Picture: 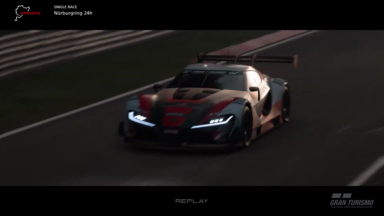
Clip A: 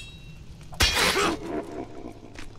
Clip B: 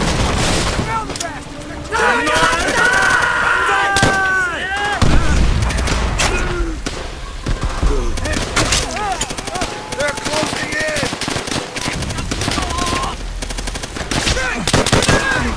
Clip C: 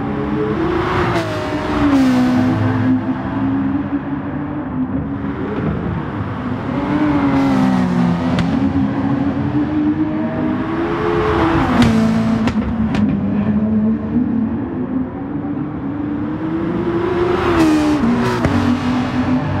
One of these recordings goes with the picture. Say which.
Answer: C